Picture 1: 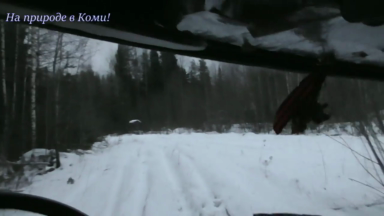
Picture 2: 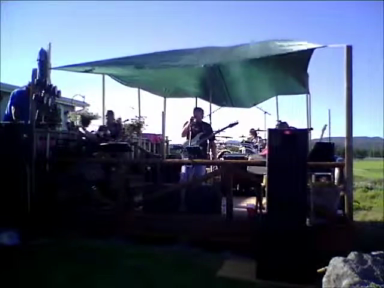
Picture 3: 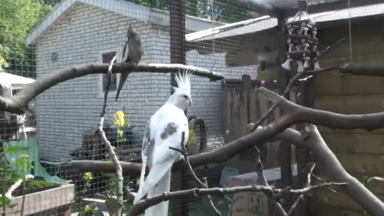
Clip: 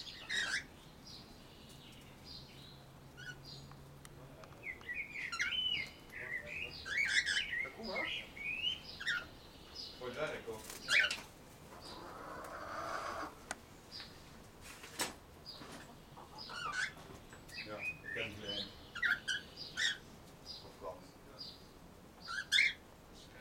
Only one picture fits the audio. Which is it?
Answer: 3